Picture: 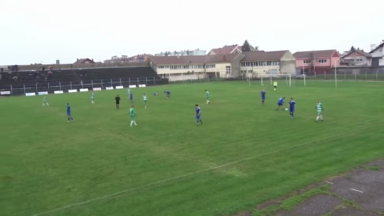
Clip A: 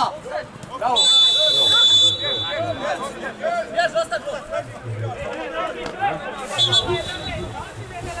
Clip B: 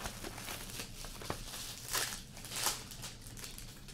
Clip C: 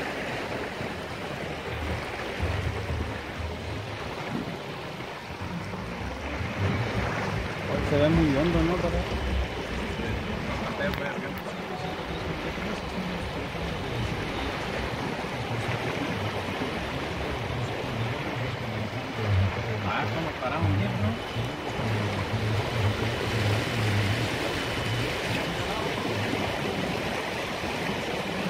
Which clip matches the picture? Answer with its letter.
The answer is A